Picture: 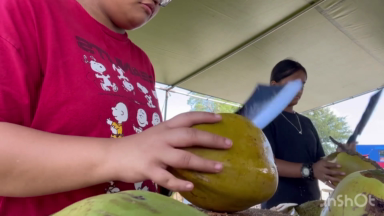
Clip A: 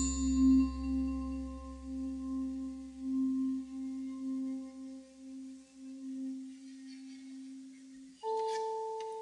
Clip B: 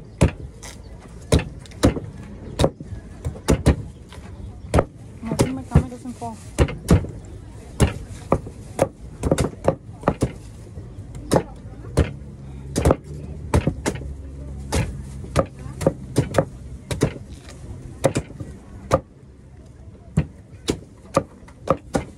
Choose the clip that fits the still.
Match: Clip B